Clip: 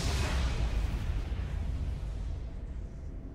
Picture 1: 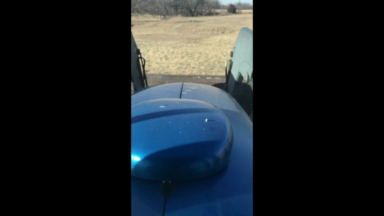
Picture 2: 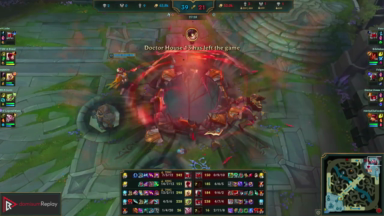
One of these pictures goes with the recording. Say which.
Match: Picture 2